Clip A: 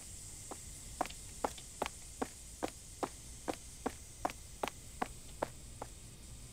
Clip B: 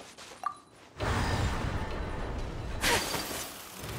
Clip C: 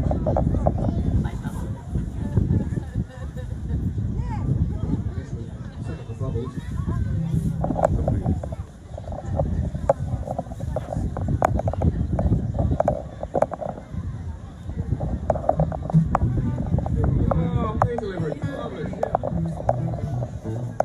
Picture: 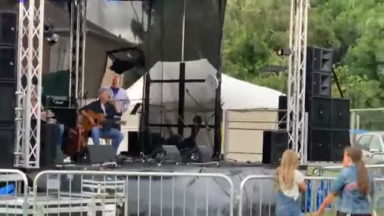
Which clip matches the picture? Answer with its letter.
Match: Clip C